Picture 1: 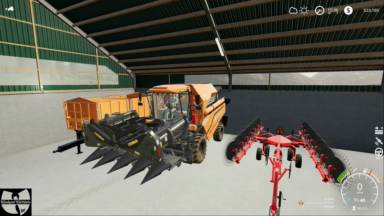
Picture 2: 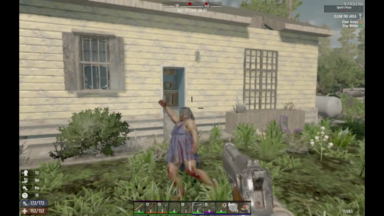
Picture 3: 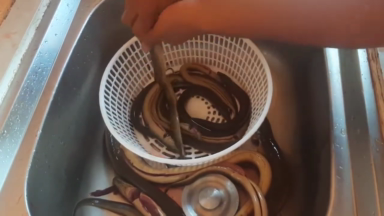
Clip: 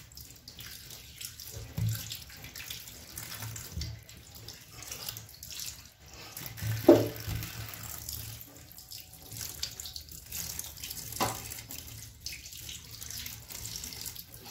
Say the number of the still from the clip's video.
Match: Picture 3